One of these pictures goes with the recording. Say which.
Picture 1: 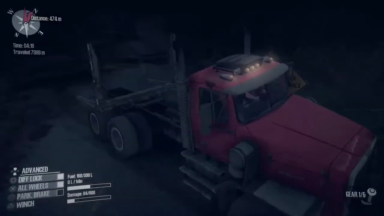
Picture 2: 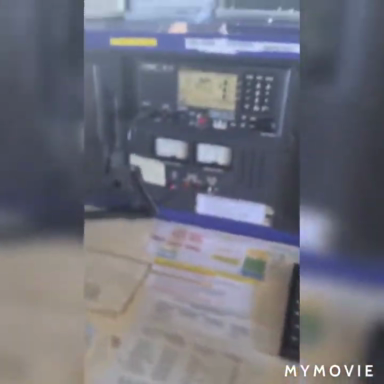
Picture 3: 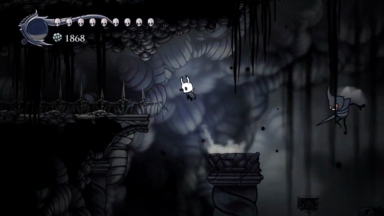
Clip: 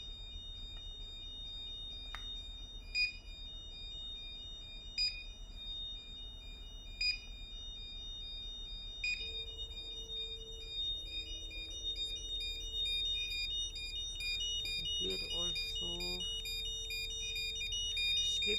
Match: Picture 2